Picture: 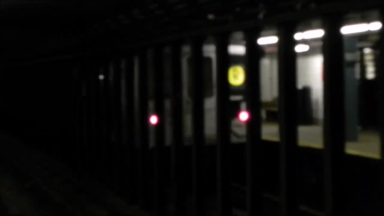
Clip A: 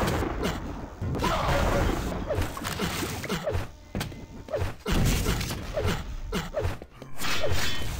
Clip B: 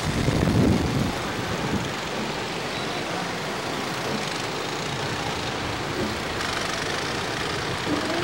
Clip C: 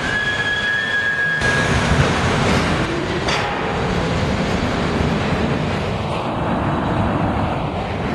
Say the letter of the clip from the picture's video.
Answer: C